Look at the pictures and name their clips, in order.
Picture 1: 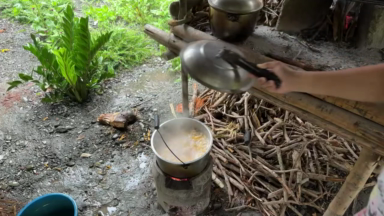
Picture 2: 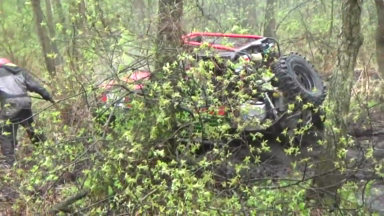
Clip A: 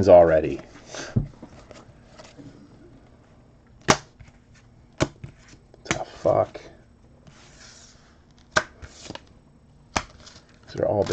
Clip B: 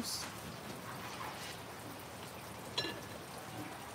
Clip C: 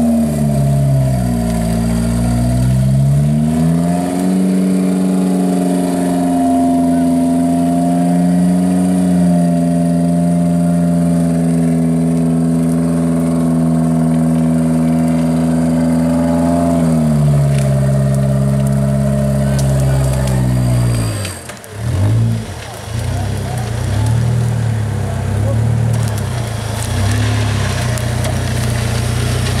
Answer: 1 B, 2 C